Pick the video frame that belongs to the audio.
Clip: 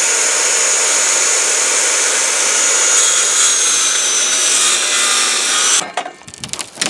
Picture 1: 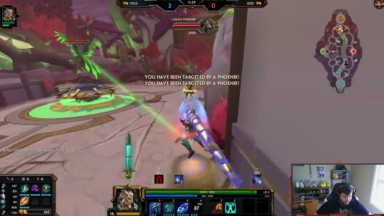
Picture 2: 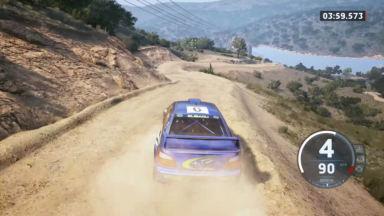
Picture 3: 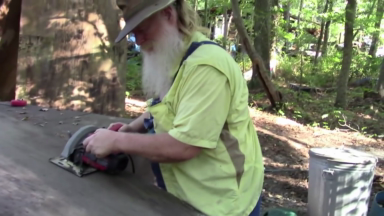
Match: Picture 3